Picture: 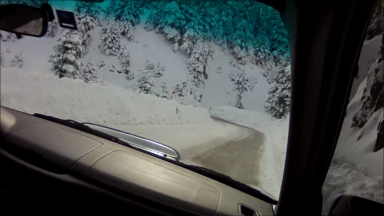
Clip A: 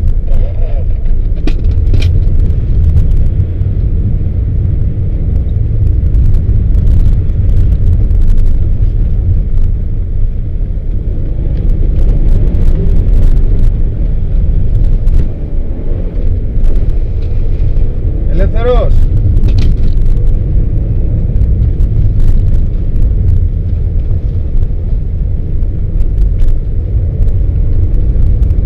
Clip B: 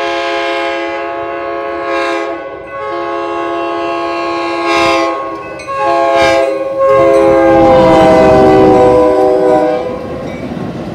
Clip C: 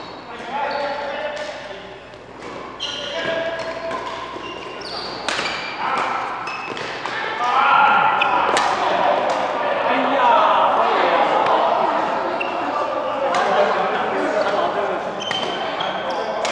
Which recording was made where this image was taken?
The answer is A